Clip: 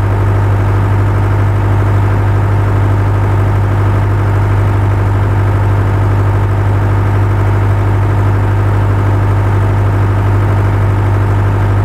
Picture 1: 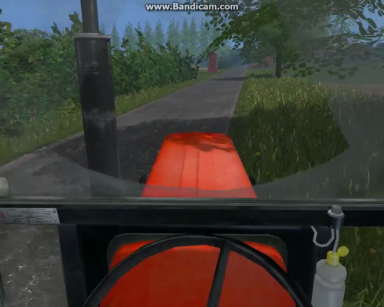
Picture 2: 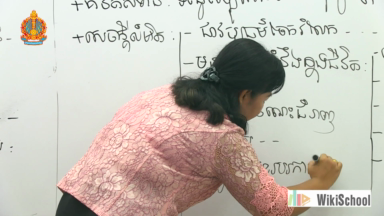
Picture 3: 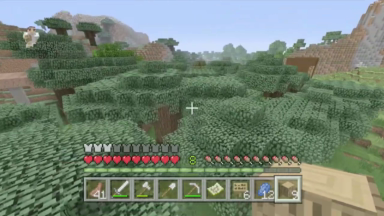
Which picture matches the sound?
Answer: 1